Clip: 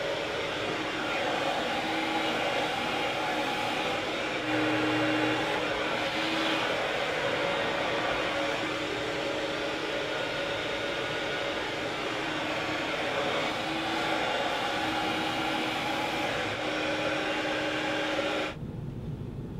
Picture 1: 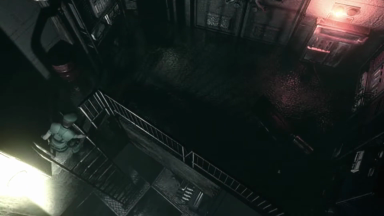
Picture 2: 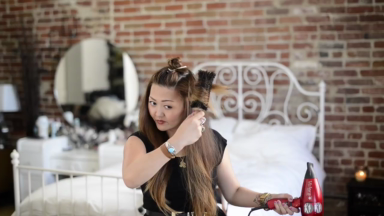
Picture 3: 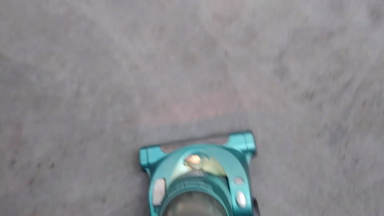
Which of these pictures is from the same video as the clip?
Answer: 2